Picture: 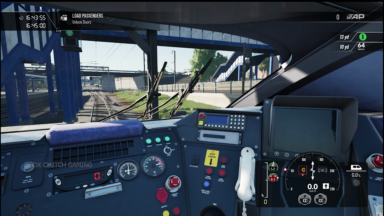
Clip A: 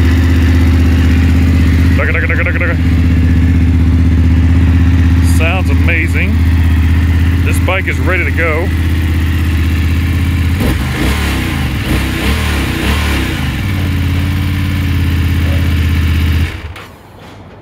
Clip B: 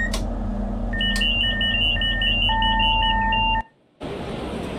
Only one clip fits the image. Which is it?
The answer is B